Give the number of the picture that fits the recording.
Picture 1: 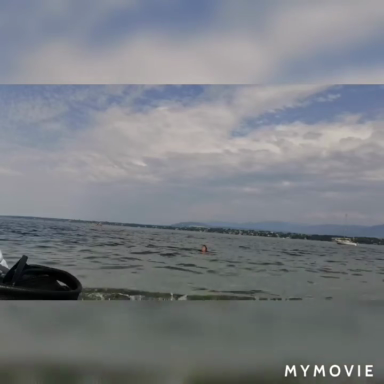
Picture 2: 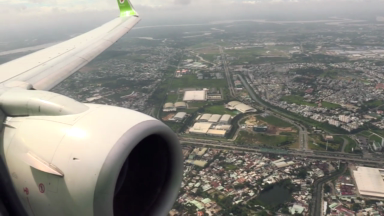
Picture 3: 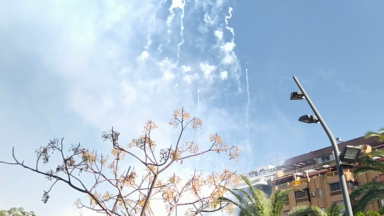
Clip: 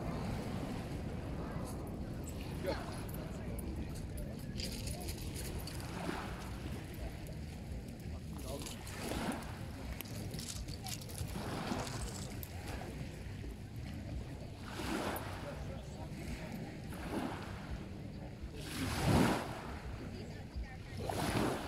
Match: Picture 1